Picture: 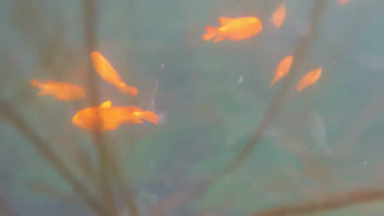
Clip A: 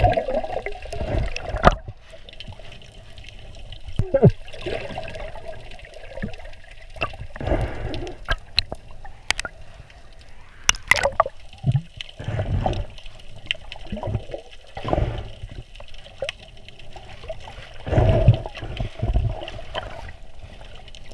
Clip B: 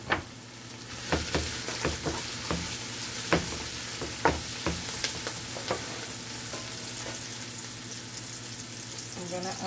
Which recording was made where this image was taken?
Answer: A